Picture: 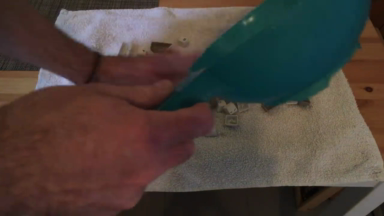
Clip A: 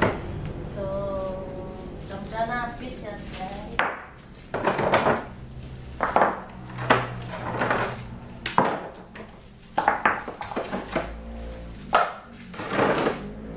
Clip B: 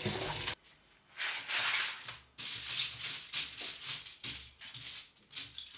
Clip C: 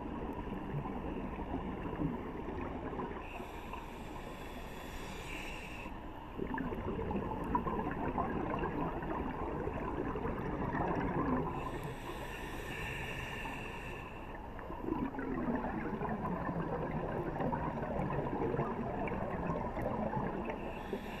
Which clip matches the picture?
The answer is B